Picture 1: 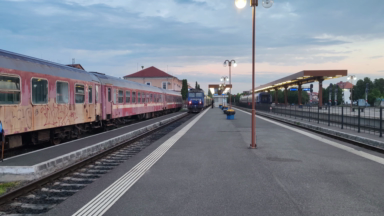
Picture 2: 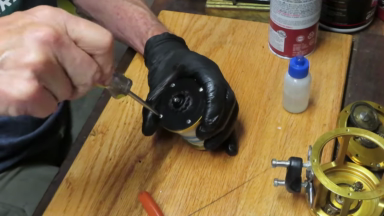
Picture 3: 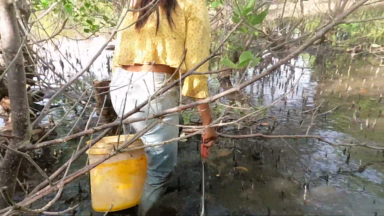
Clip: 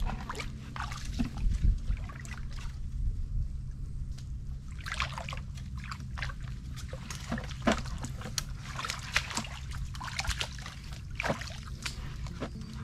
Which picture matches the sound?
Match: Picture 3